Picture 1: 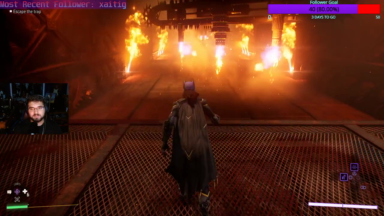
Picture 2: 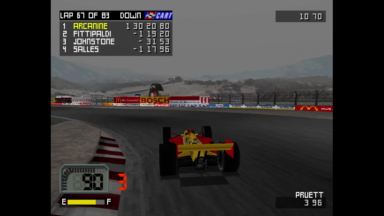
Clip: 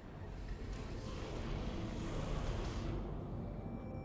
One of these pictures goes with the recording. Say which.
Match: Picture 1